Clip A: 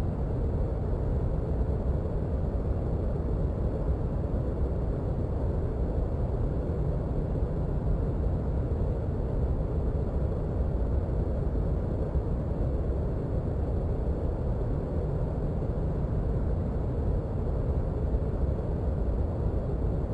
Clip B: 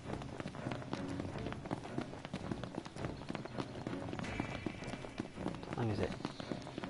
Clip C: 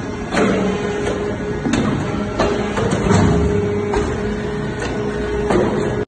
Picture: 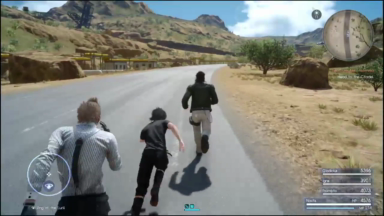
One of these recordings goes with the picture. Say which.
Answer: B